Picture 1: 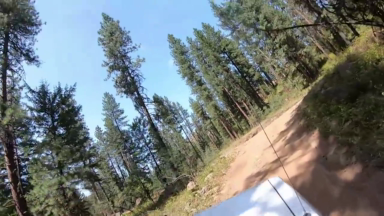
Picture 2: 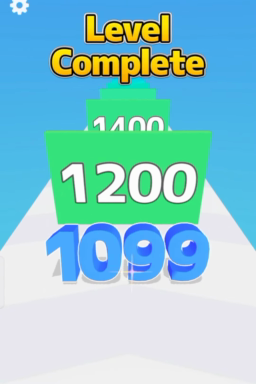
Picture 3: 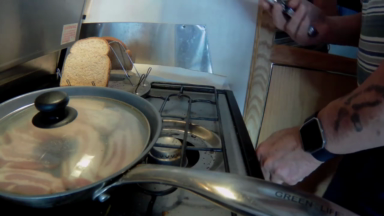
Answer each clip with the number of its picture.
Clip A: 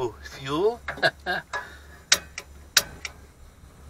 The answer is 3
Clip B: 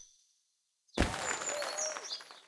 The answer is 2